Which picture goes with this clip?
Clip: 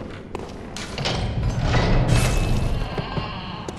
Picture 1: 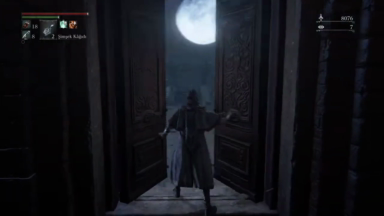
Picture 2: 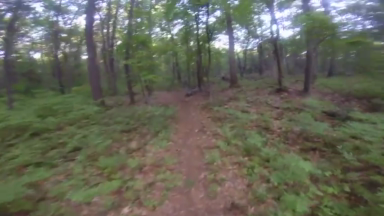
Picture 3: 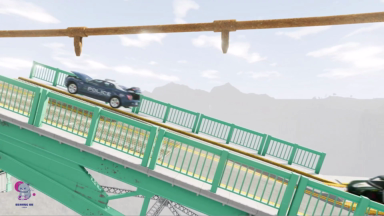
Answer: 1